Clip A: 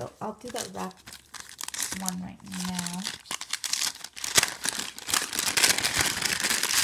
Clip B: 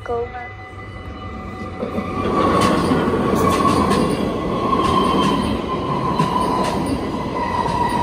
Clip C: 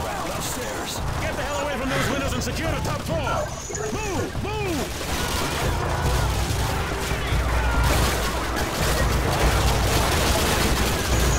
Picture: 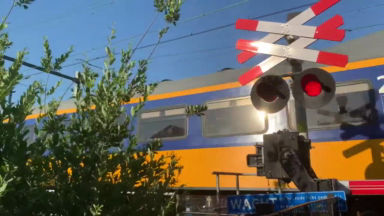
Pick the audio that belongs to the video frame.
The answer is B